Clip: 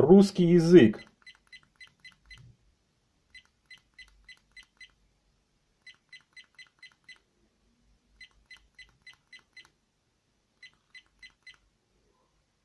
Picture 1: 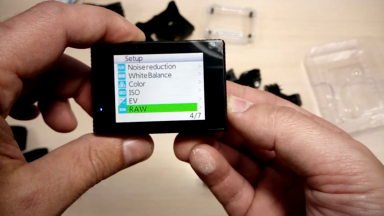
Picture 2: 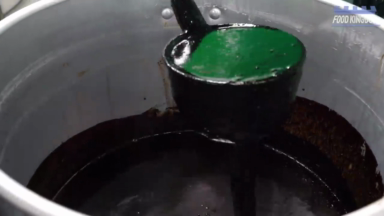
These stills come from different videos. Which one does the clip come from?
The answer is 1